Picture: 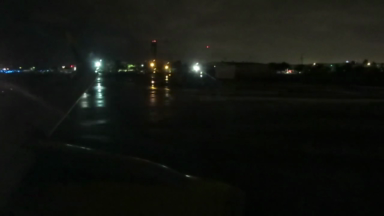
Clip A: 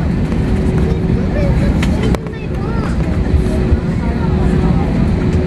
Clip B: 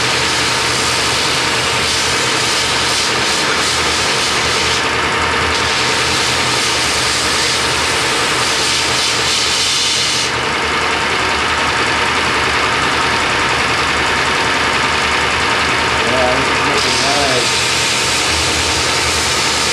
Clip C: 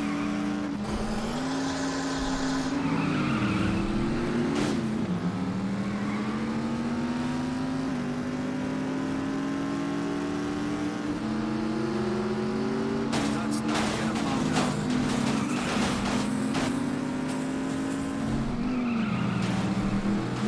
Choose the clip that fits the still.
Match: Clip A